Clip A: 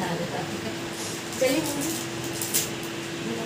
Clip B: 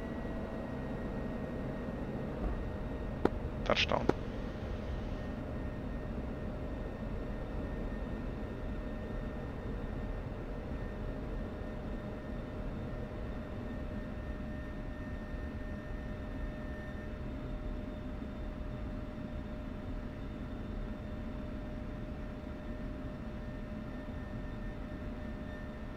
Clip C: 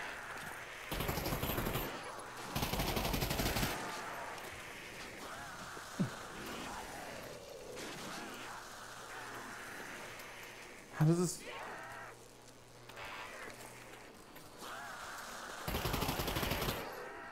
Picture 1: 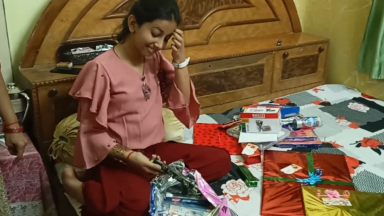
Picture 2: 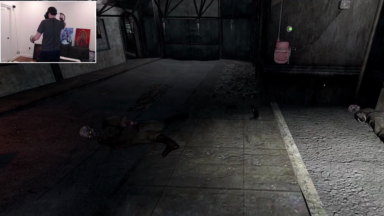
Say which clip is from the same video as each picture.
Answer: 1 A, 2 C